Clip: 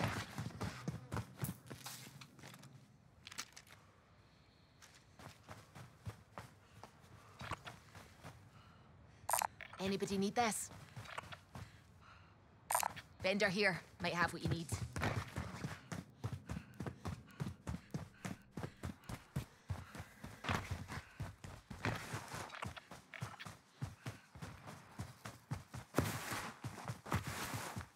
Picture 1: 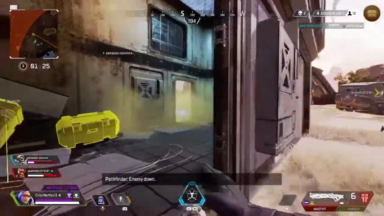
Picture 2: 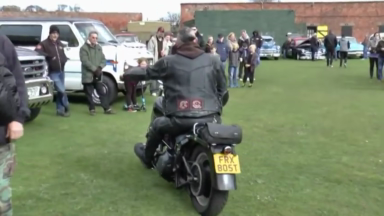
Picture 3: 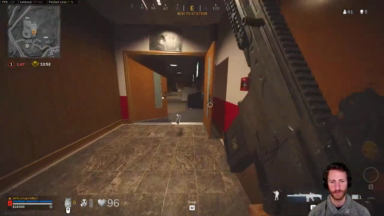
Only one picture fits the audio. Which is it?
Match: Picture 3